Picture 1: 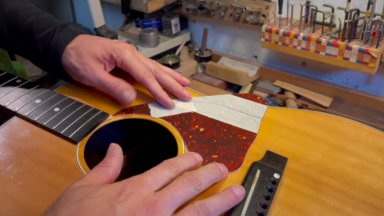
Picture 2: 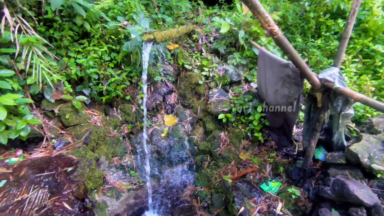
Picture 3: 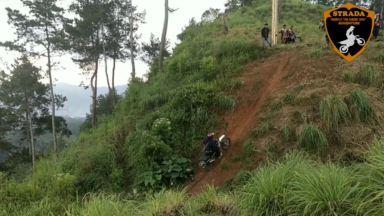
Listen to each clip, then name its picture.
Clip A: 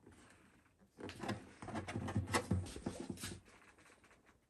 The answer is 1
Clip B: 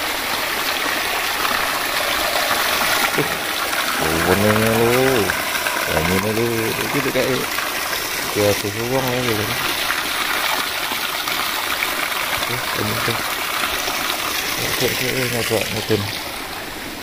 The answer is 2